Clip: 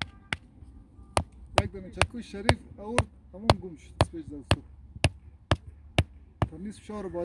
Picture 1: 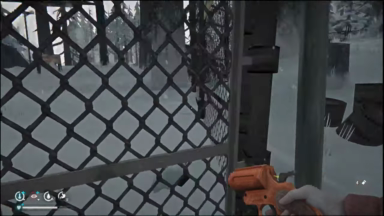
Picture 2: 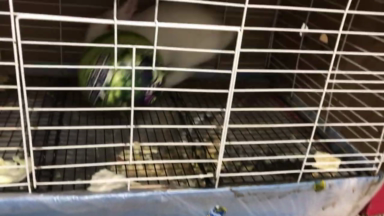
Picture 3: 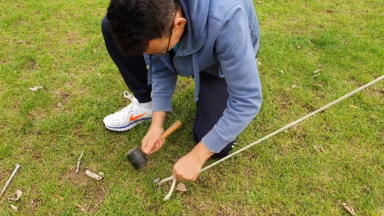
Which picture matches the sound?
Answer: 3